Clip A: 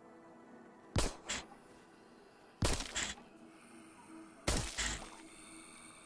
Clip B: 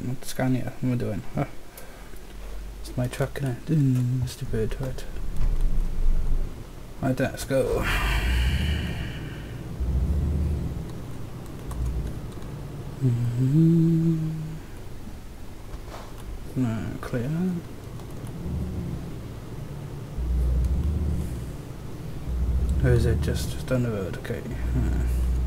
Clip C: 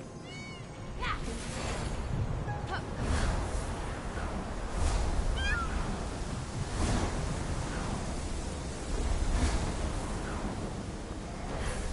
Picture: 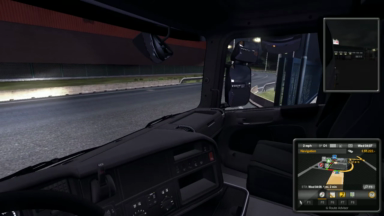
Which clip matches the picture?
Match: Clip B